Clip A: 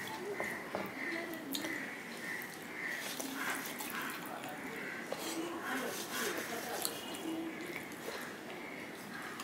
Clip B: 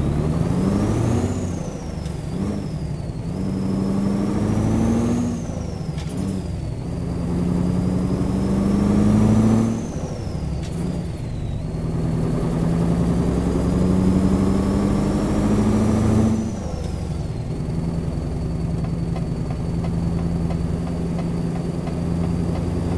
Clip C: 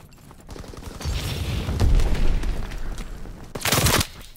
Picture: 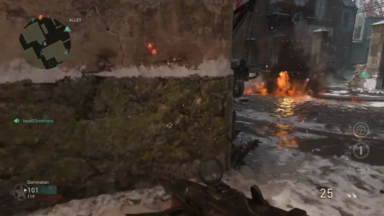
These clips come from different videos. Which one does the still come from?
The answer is C